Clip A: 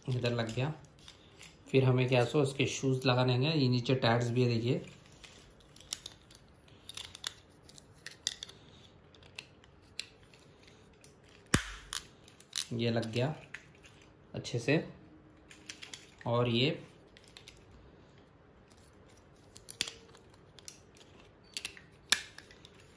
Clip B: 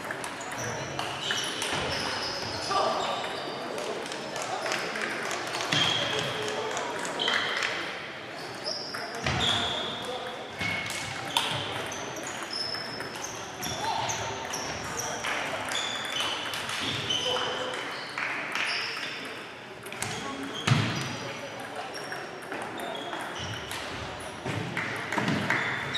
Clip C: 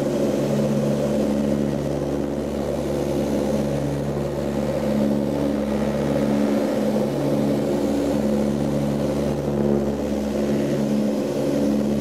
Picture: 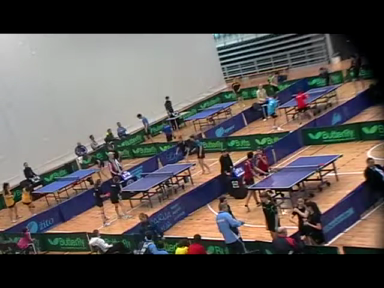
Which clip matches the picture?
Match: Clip B